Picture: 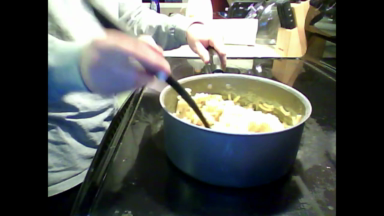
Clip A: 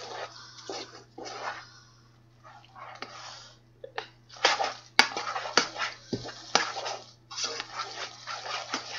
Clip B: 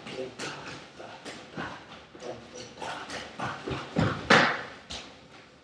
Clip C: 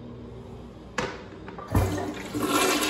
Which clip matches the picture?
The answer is A